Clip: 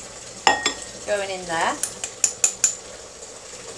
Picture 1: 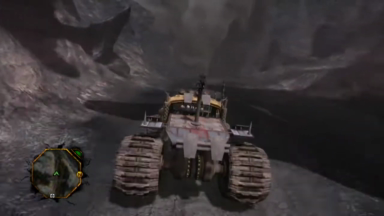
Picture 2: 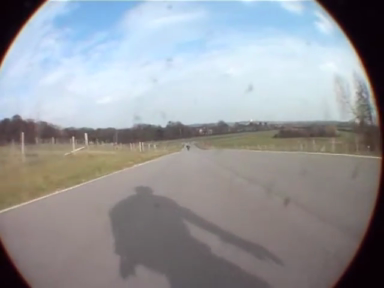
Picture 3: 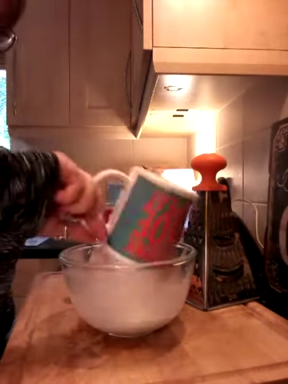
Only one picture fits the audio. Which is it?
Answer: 3